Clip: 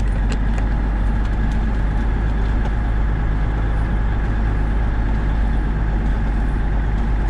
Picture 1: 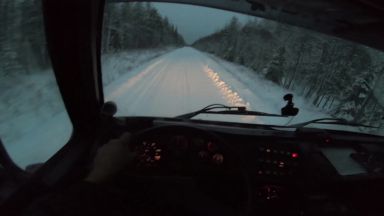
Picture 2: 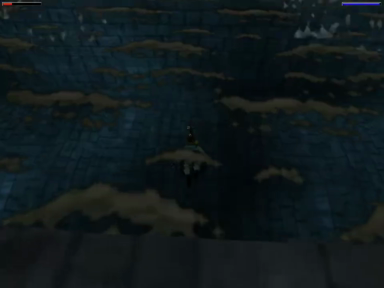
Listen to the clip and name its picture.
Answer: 1